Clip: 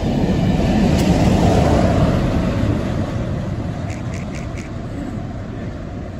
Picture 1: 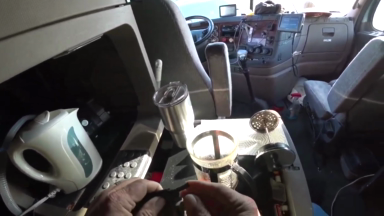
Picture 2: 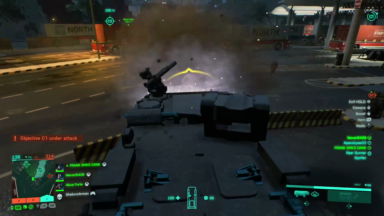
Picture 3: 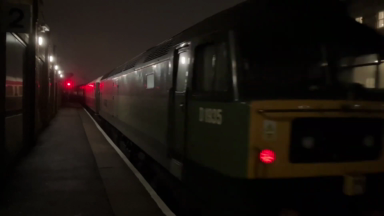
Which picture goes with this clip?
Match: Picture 3